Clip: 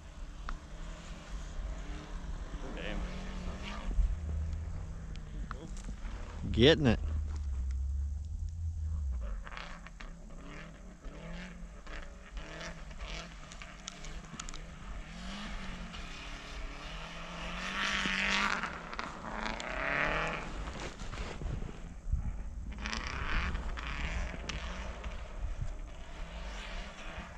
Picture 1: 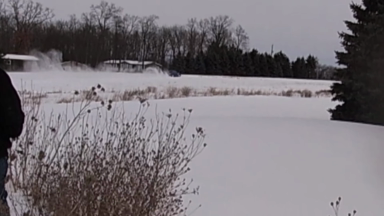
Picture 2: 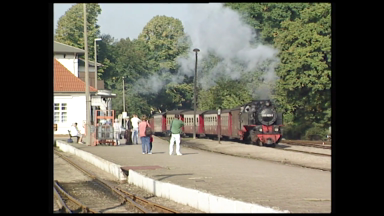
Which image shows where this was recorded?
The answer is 1